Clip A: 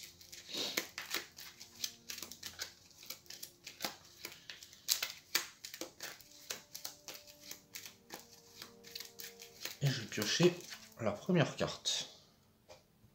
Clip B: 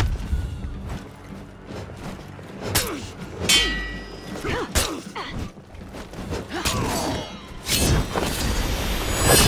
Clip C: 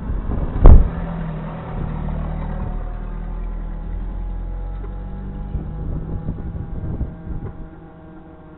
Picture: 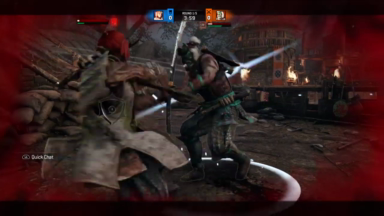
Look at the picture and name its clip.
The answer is B